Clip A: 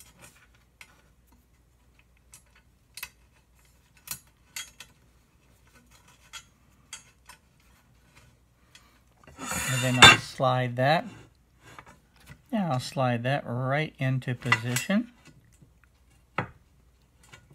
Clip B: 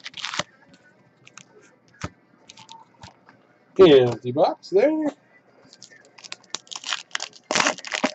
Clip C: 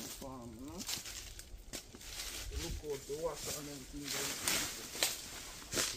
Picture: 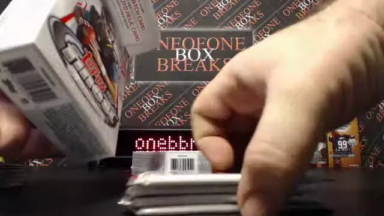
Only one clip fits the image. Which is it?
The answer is B